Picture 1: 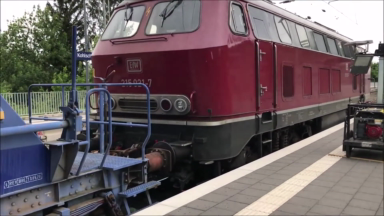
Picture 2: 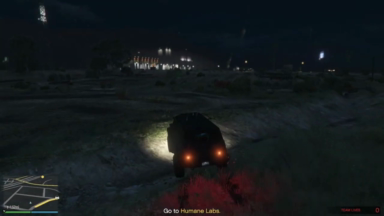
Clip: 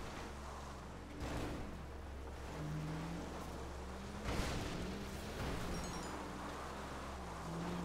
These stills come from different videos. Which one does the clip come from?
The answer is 2